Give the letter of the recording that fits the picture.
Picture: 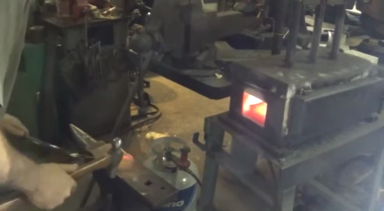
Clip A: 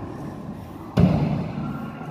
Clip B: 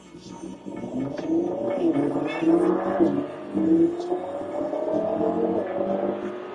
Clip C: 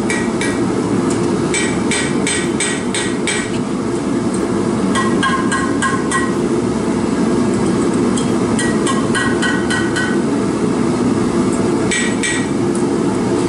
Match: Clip C